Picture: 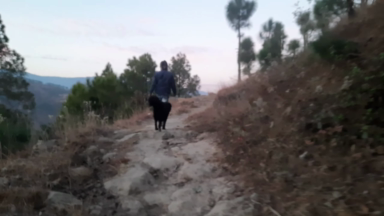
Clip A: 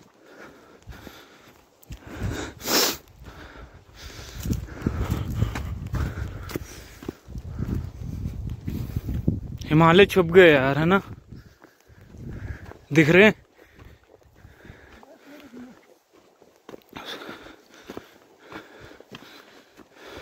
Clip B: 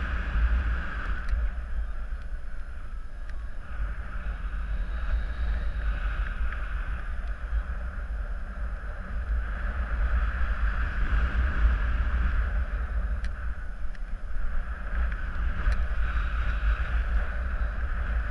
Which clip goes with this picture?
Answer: A